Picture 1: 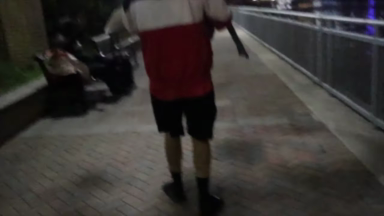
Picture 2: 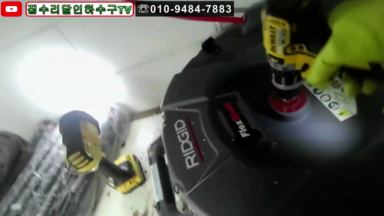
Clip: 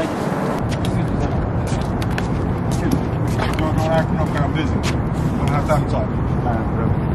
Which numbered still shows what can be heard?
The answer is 1